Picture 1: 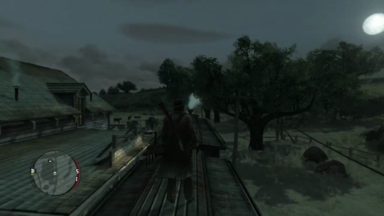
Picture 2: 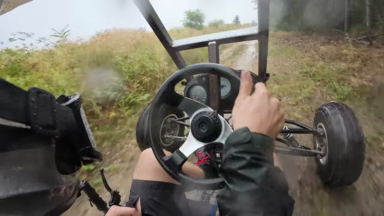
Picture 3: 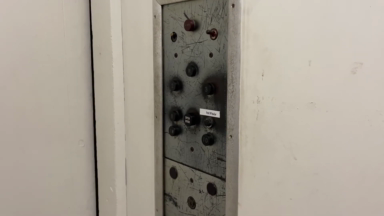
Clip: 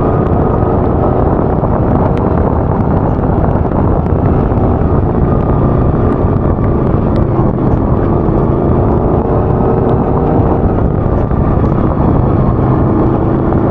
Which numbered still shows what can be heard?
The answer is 2